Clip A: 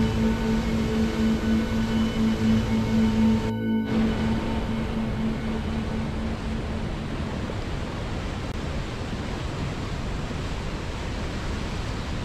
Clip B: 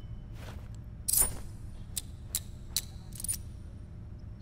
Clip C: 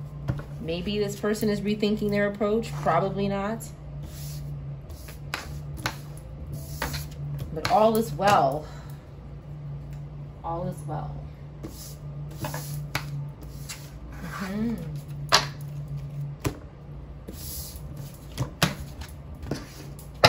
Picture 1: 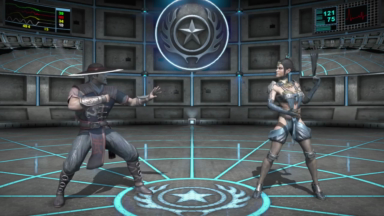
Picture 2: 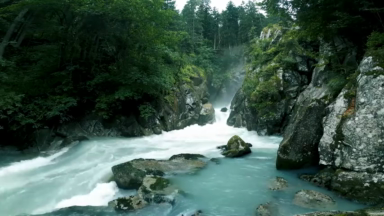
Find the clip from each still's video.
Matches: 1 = B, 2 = A